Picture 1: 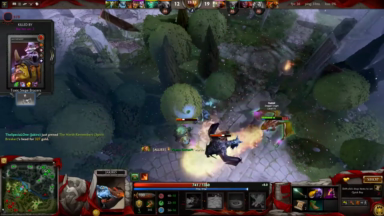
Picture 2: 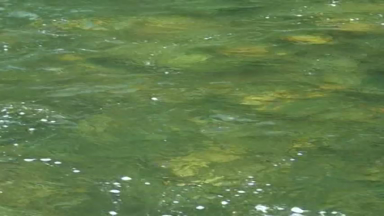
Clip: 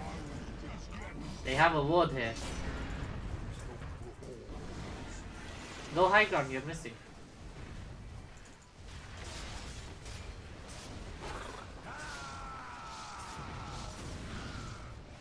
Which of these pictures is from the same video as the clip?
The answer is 1